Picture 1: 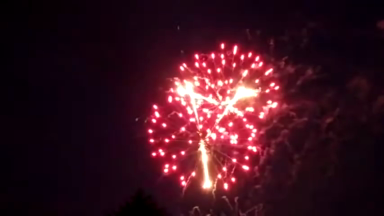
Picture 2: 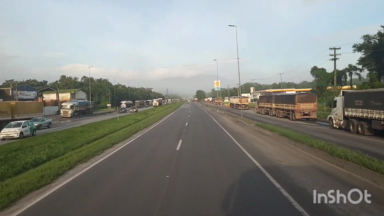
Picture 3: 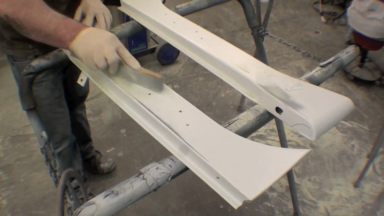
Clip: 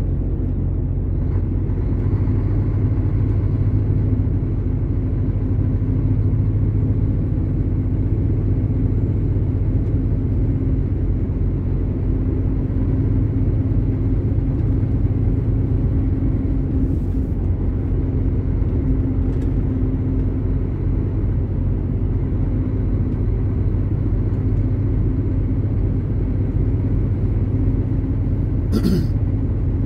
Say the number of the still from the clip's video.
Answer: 2